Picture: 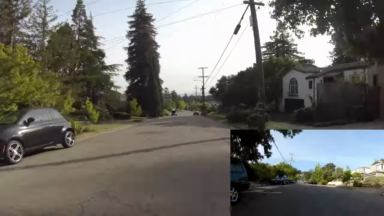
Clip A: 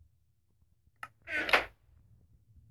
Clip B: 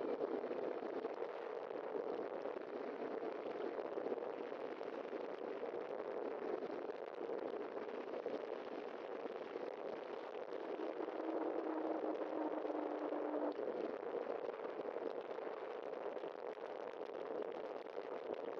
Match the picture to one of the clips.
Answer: B